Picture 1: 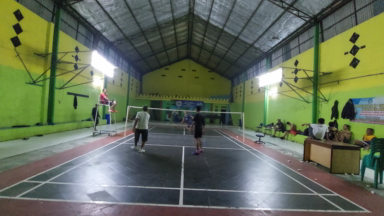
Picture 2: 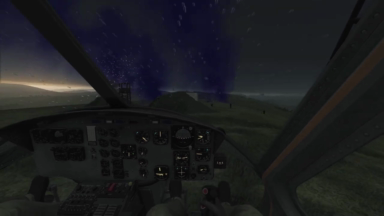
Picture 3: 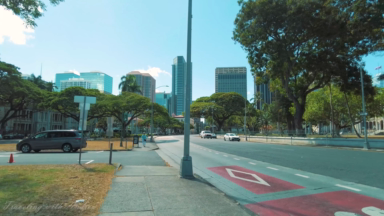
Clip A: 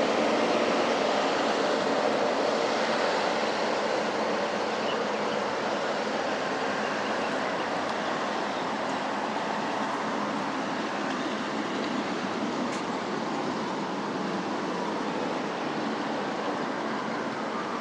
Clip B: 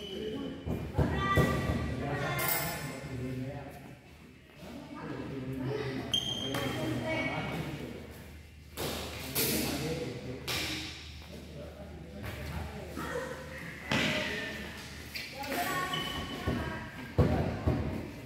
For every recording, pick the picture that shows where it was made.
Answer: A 3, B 1